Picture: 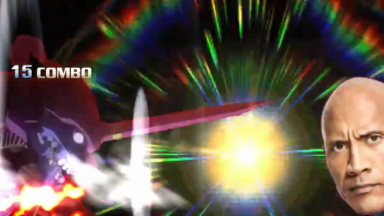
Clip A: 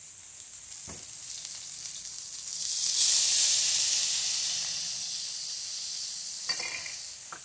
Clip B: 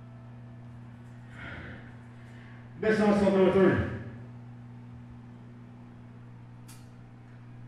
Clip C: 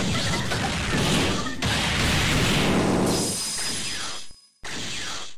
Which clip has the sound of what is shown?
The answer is C